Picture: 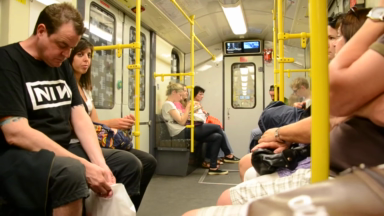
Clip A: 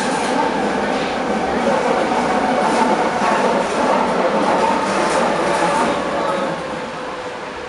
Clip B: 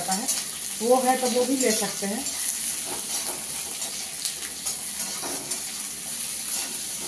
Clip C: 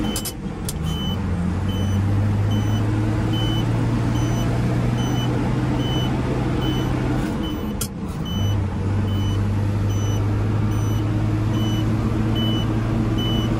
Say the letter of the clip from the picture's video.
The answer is A